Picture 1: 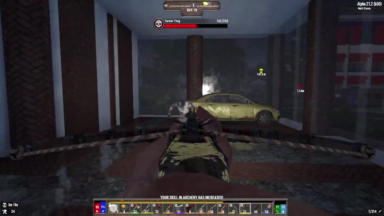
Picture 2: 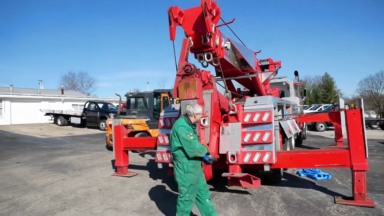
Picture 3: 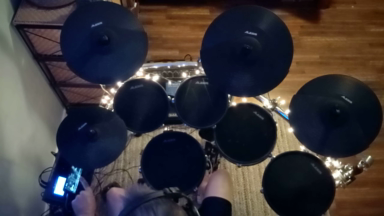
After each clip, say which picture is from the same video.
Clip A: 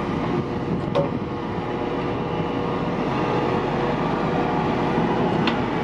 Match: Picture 2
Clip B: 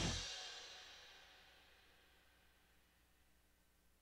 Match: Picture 3